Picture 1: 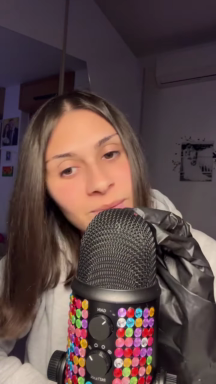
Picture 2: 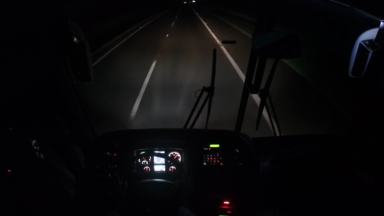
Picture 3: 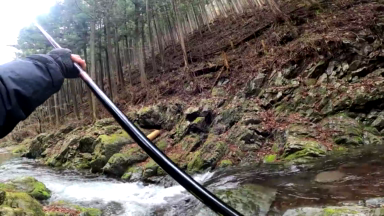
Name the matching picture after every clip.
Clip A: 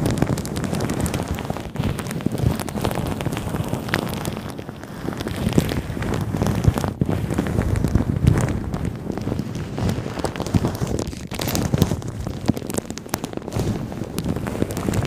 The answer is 1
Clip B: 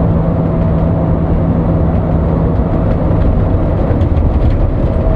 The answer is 2